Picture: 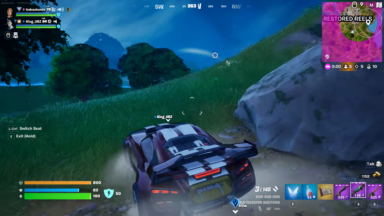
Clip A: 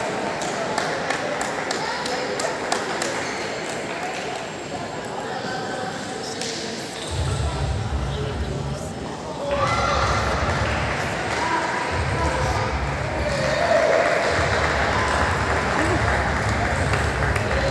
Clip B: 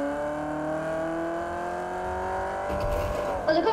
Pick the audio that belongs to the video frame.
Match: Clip B